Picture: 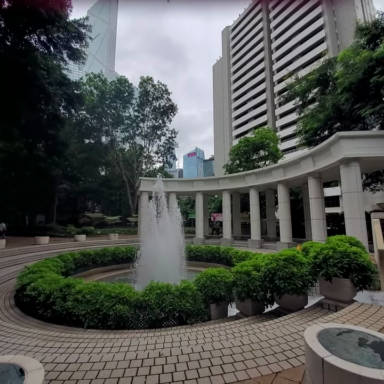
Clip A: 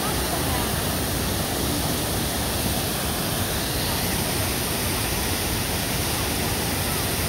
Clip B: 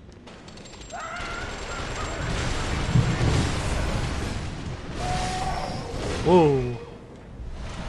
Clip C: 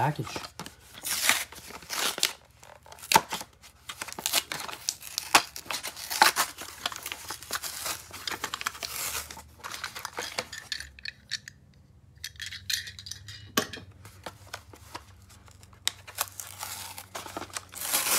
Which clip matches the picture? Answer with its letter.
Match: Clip A